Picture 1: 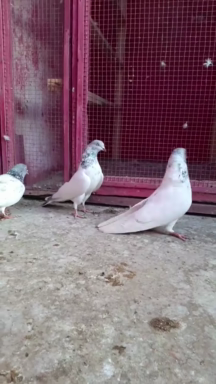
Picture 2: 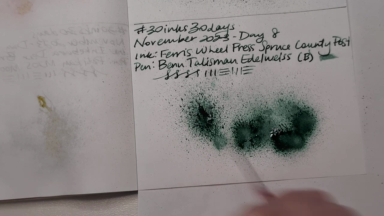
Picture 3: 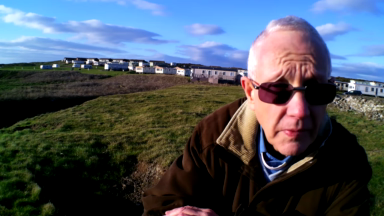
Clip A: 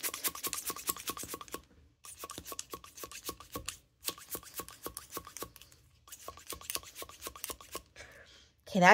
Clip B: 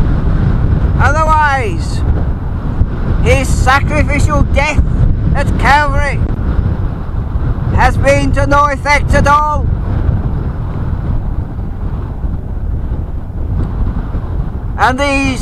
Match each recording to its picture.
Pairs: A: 2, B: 3